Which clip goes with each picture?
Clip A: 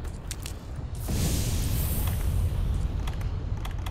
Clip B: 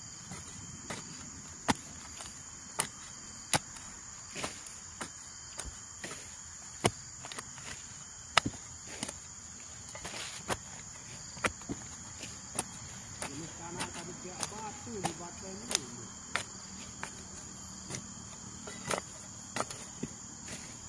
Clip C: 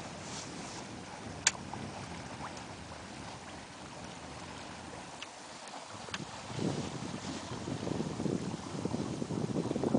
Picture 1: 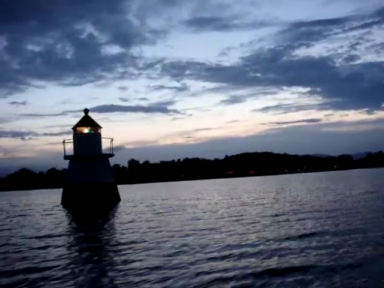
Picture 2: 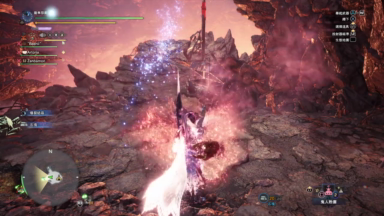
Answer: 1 C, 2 A